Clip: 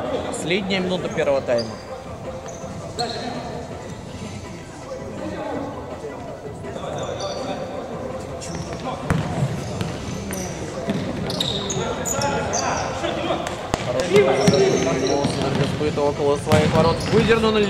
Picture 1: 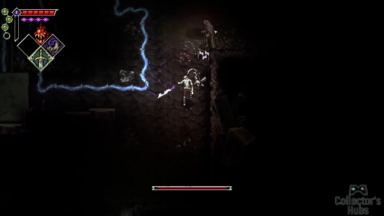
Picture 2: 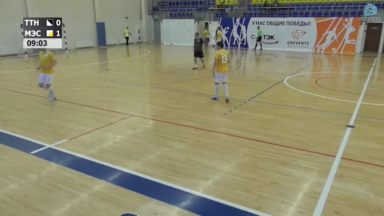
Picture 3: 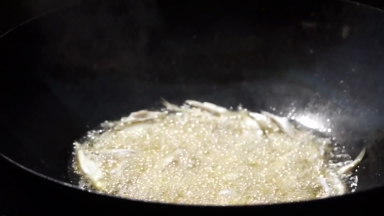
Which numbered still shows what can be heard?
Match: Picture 2